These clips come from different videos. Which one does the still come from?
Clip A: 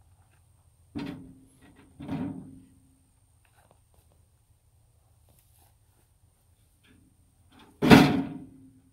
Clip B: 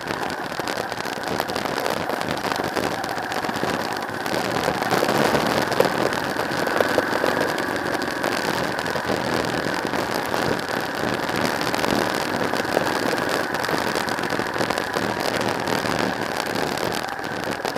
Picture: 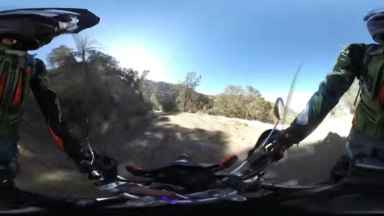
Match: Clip B